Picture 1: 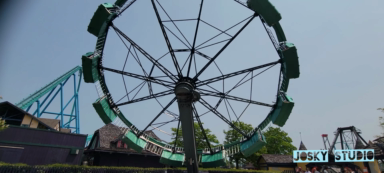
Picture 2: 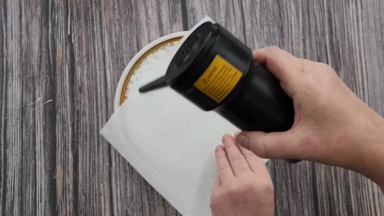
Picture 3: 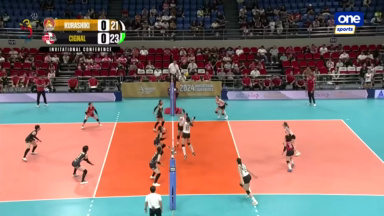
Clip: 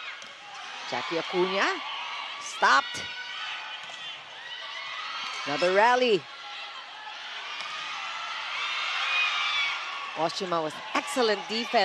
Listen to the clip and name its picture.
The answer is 3